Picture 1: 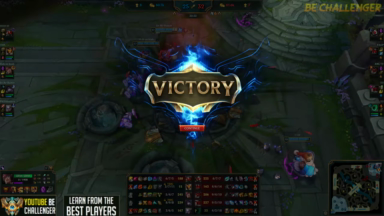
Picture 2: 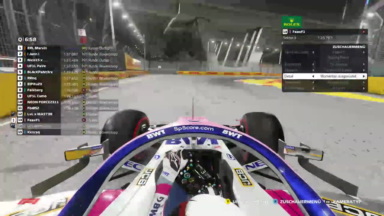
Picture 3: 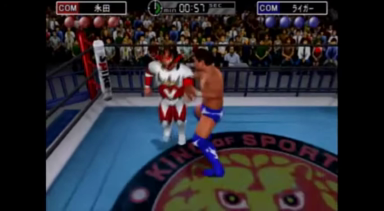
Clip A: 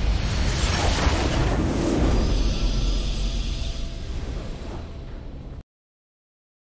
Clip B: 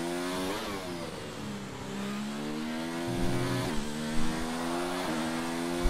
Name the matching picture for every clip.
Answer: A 1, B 2